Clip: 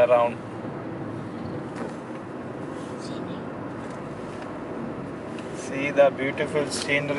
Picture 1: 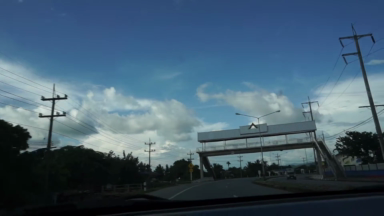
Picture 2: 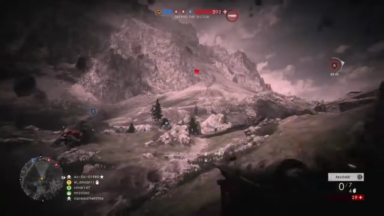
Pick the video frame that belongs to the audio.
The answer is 1